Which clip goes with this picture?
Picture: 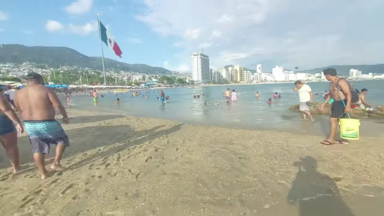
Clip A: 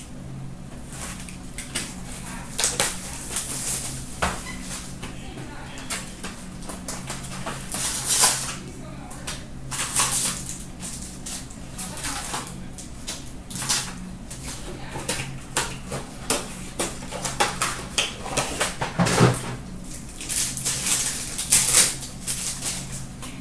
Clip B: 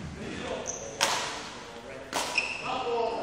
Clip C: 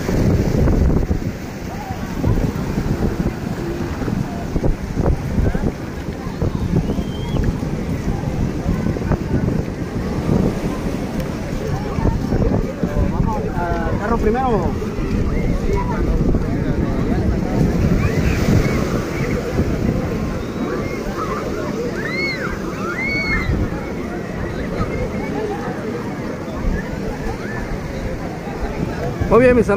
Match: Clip C